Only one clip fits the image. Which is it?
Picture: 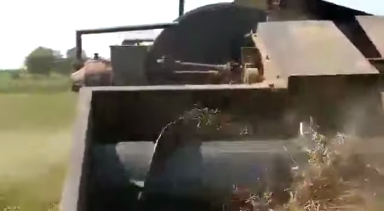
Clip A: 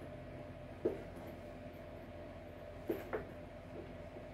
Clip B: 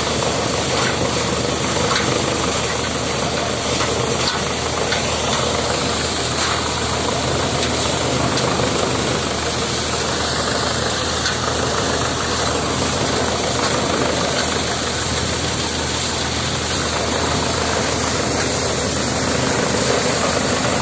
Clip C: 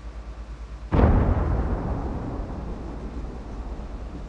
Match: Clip B